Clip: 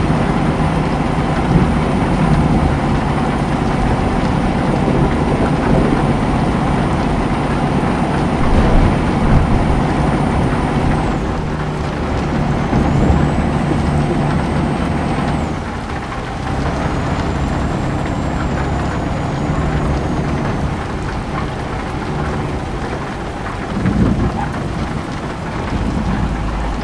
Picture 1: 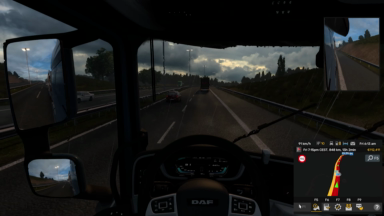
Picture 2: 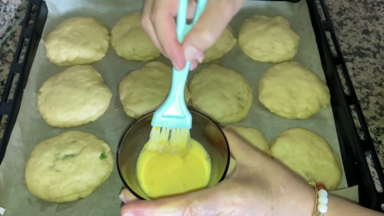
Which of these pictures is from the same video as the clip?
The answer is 1